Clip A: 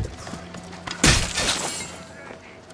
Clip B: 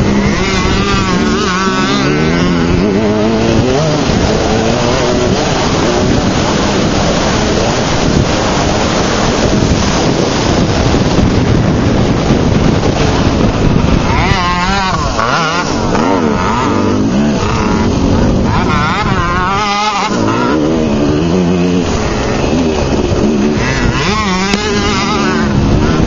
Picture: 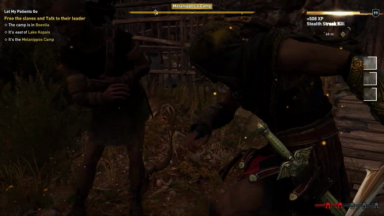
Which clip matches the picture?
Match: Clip A